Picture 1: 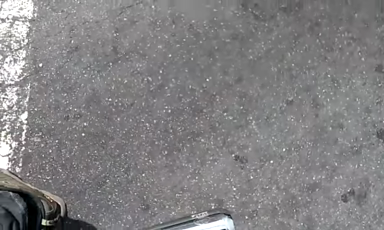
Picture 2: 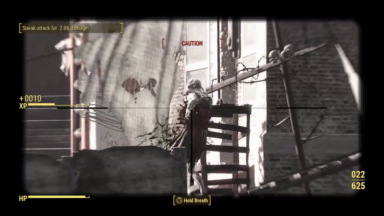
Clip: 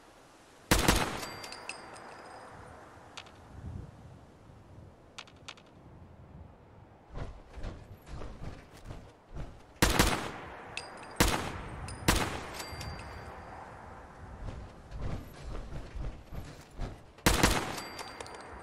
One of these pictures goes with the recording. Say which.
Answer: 2